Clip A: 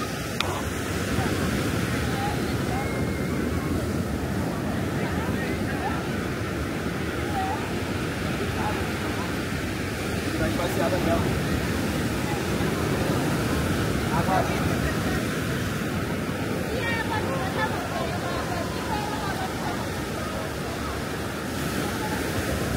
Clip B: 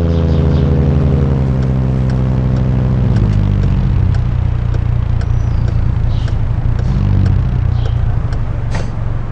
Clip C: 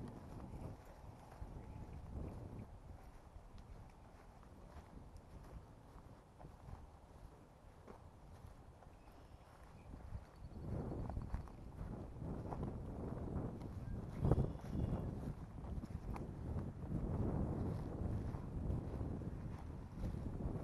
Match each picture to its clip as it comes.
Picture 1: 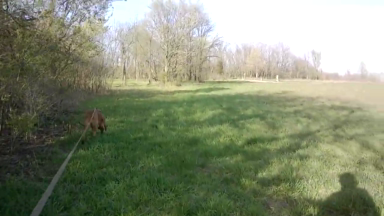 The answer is C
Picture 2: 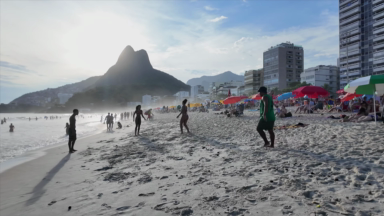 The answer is A